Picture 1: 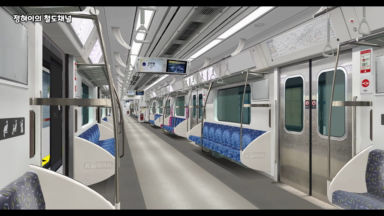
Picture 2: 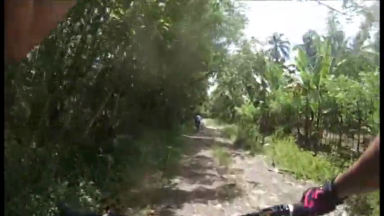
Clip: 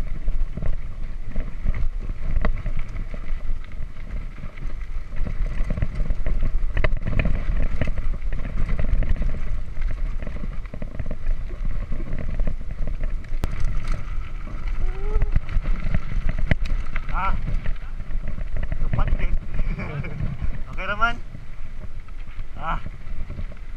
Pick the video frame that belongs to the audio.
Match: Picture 2